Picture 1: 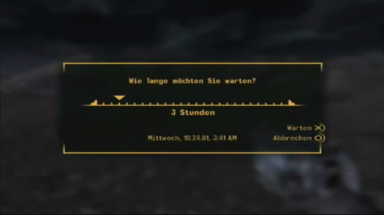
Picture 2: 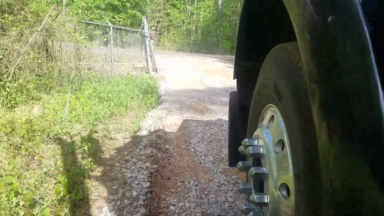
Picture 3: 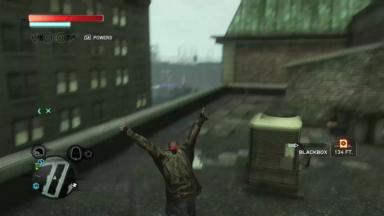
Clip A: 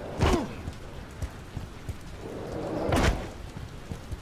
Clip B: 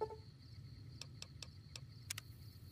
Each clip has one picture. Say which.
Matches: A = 3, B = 1